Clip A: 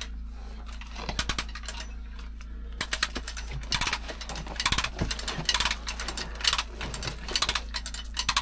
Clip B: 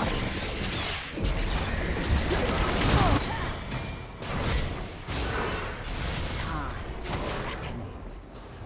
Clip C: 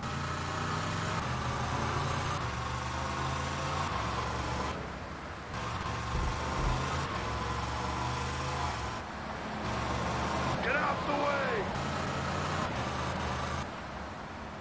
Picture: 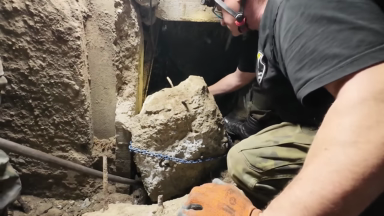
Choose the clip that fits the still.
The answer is A